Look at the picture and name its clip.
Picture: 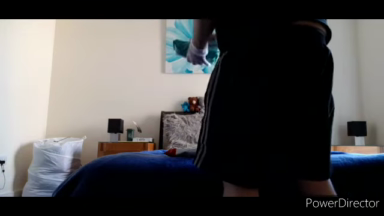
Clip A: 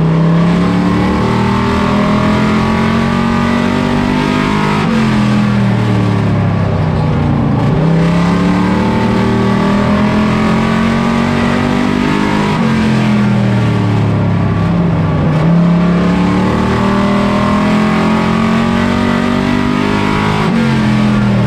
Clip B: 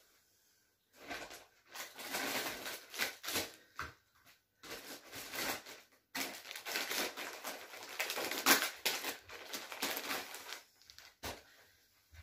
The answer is B